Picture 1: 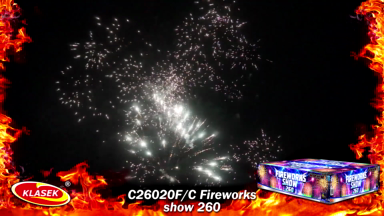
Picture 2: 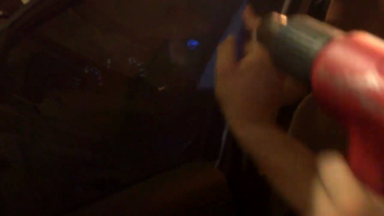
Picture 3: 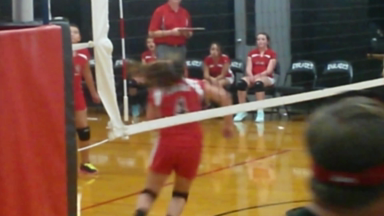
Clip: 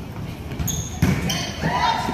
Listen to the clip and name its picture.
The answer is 3